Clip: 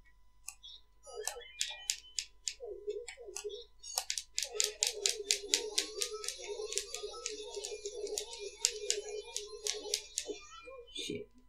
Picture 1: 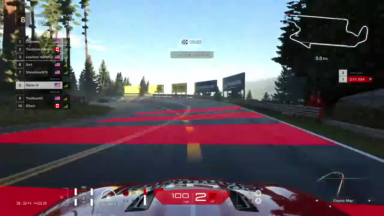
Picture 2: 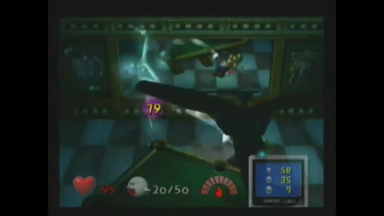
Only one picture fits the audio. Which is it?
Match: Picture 2